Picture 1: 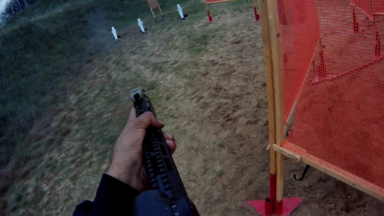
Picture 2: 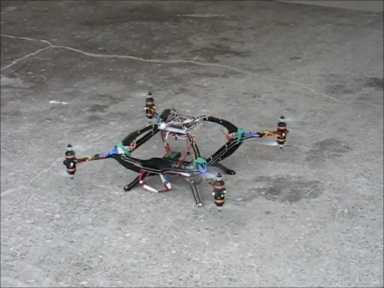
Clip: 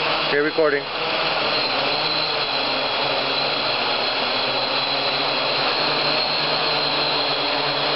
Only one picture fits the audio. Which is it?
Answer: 2